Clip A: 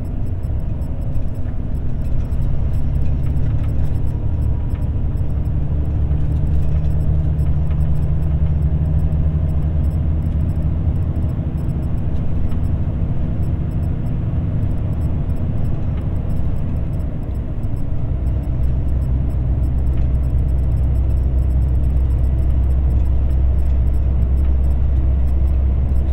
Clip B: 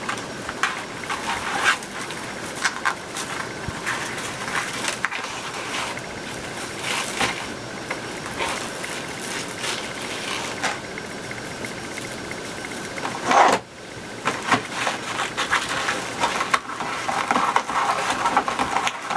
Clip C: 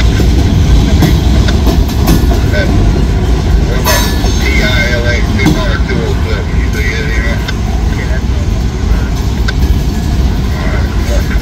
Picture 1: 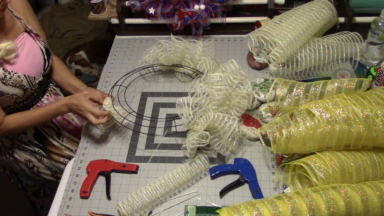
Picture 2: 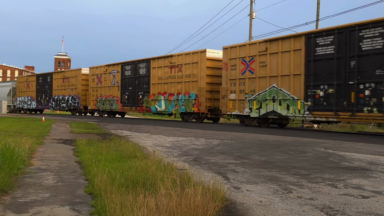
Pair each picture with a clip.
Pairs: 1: B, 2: C